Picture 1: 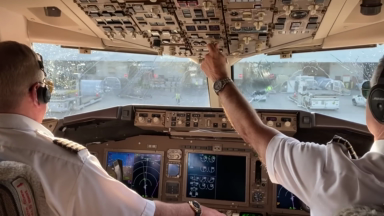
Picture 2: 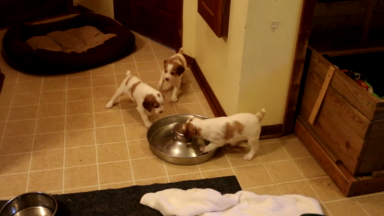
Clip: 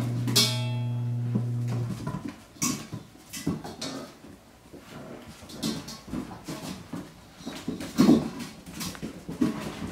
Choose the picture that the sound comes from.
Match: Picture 2